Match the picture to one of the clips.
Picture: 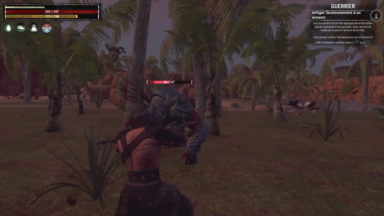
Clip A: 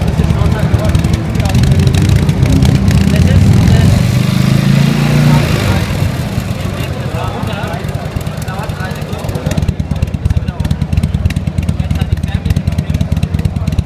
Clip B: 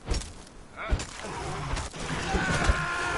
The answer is B